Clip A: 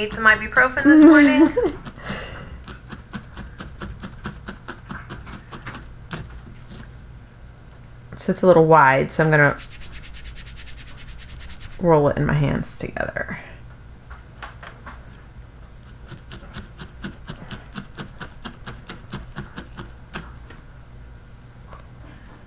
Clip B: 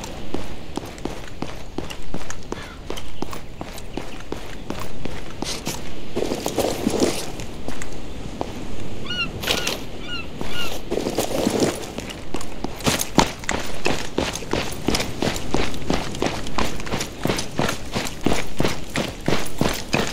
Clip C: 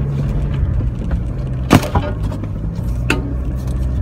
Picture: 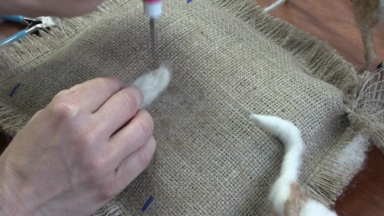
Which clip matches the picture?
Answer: A